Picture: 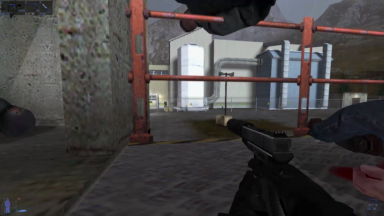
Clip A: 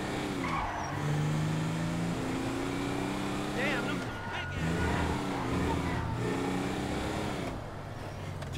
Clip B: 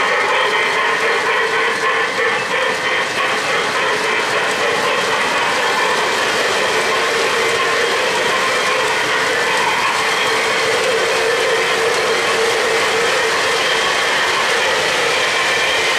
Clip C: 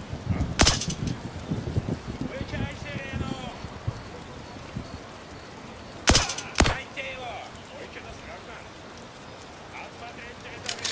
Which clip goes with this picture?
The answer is C